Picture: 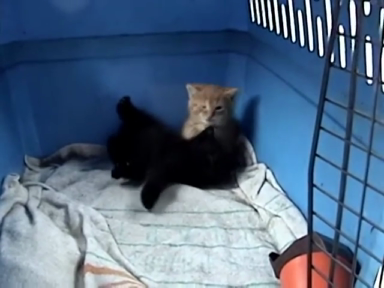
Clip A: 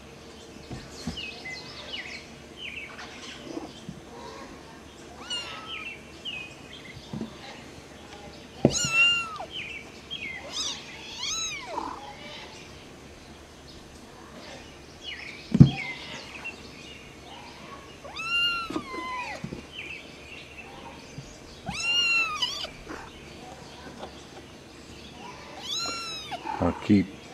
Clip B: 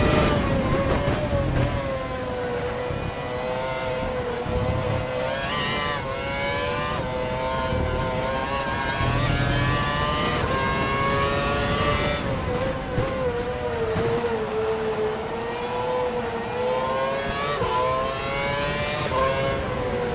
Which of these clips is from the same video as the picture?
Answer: A